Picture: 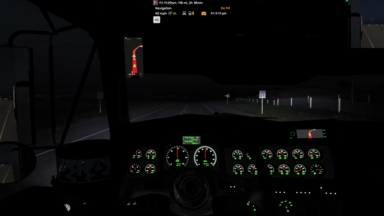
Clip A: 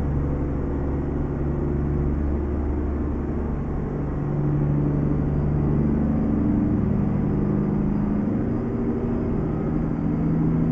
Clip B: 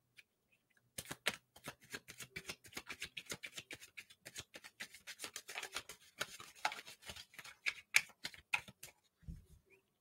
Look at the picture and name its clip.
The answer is A